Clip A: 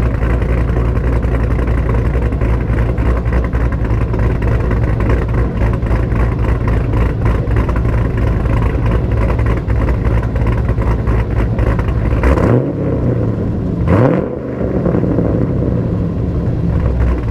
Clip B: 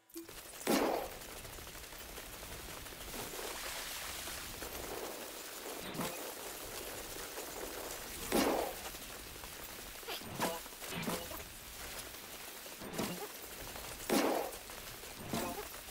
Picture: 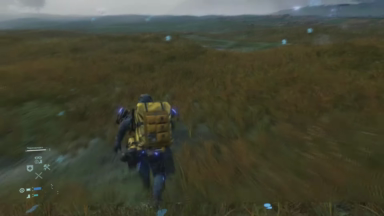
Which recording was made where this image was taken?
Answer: B